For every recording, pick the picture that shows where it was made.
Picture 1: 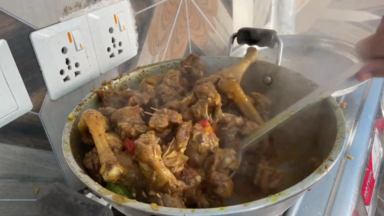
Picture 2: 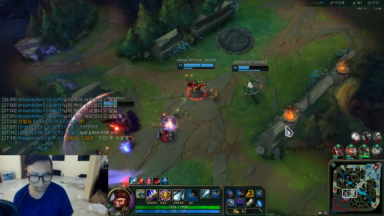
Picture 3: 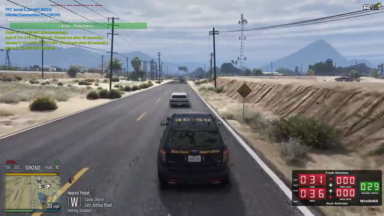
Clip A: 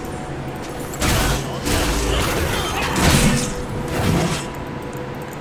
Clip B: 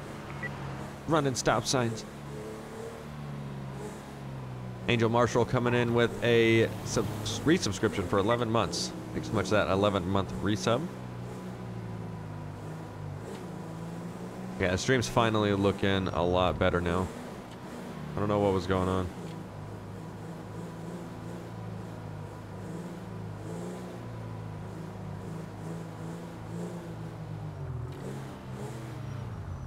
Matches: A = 2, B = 3